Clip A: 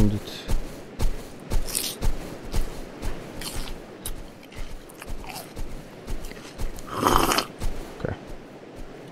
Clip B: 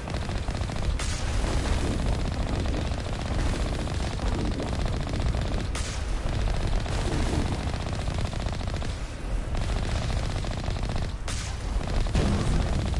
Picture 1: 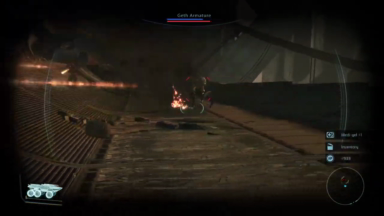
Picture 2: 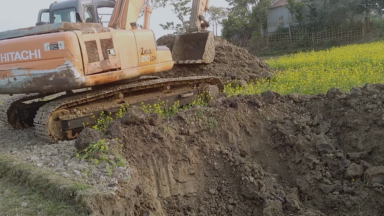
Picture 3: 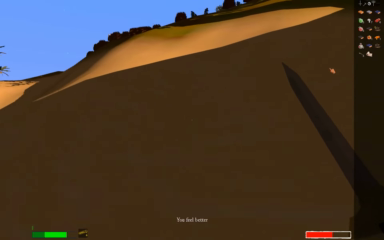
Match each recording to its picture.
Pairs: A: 3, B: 1